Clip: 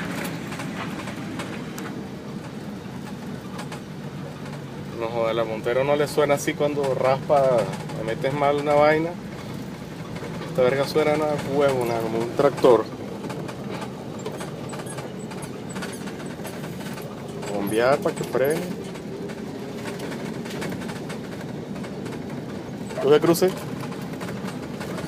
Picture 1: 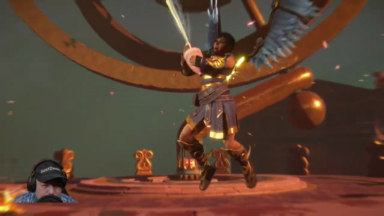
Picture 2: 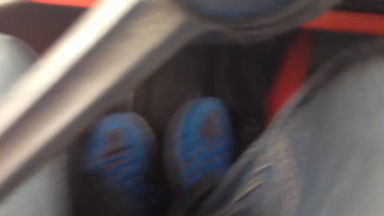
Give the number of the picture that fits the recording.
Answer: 2